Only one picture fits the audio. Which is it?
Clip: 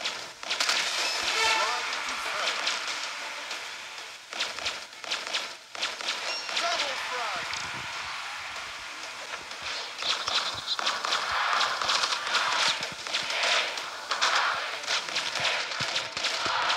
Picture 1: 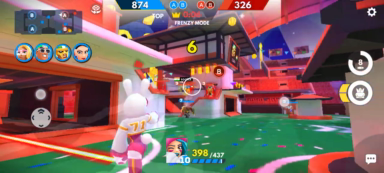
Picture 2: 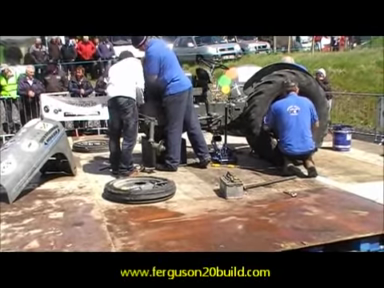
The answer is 1